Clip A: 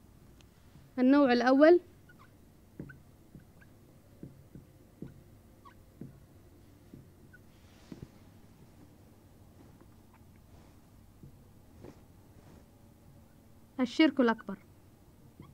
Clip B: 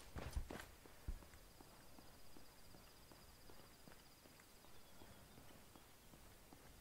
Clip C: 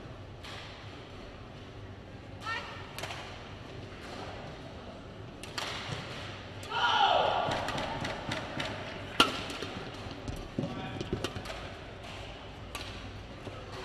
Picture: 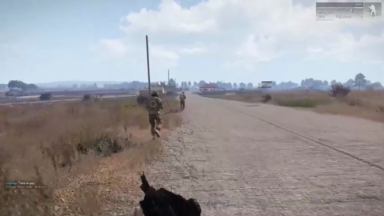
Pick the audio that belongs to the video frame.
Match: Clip B